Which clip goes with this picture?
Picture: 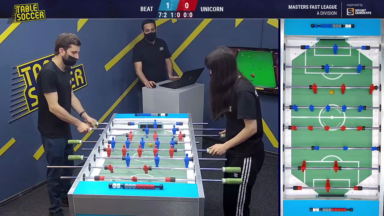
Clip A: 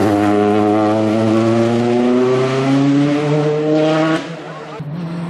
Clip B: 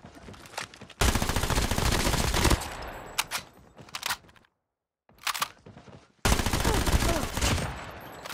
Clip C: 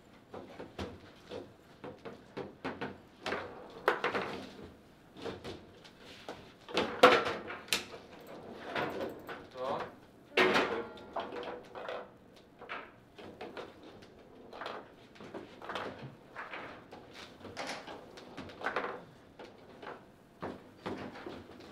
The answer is C